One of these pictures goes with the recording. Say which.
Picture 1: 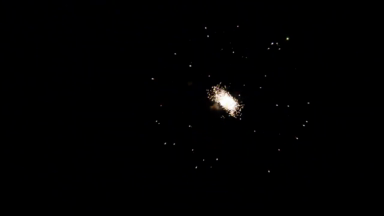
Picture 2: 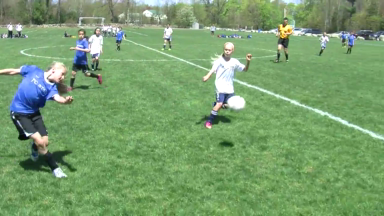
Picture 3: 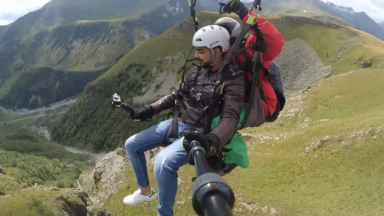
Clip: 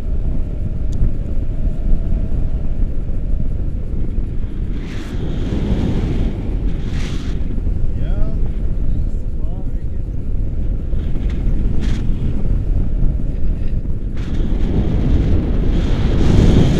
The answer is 3